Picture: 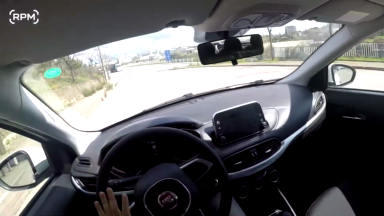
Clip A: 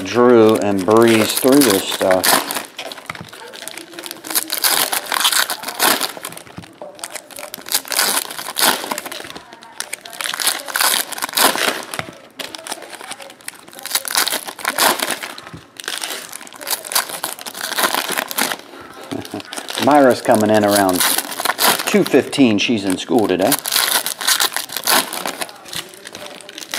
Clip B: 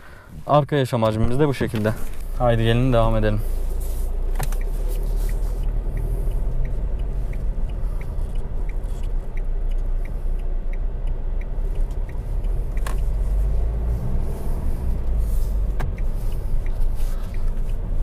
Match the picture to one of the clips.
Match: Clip B